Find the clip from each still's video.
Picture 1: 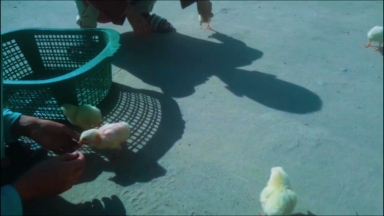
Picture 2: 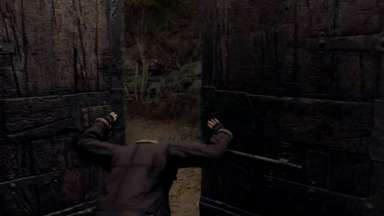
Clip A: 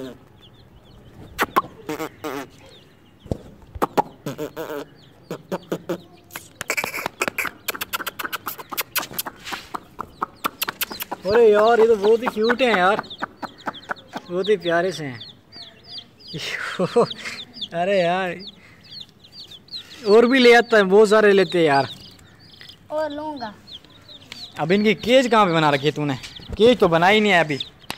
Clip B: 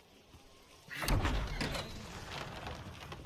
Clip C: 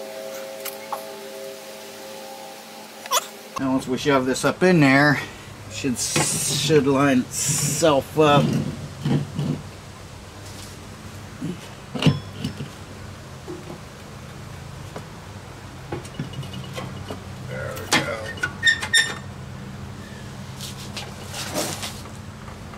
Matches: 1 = A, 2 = B